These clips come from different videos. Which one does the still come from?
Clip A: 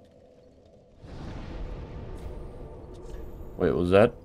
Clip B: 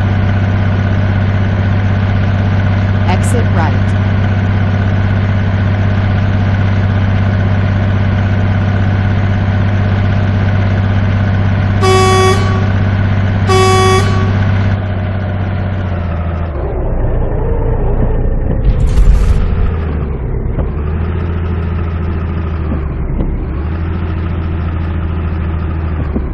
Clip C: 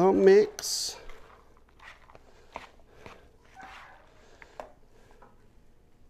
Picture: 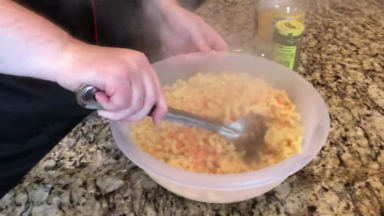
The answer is C